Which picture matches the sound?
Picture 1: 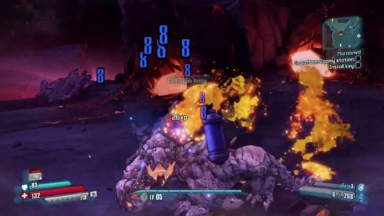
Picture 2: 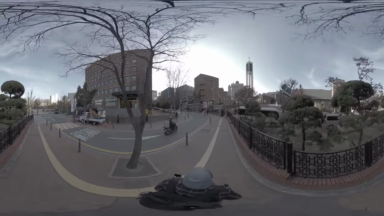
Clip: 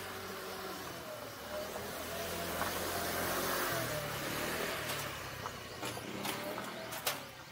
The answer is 2